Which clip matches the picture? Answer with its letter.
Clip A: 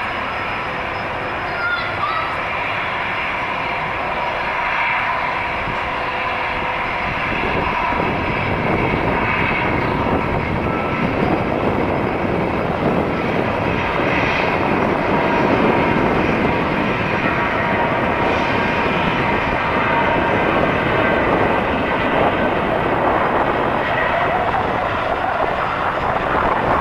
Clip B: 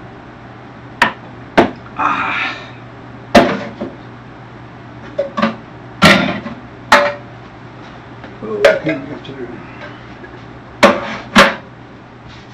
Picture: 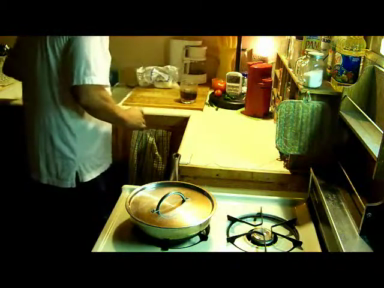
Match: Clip B